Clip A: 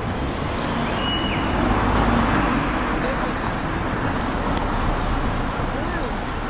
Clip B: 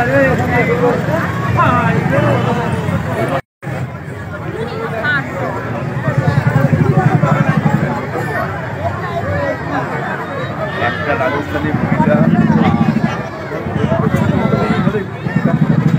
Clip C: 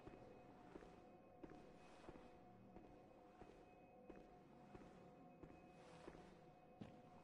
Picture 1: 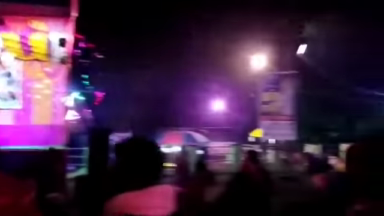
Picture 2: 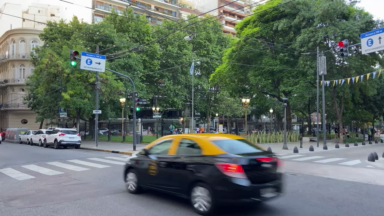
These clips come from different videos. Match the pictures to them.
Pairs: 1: B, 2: A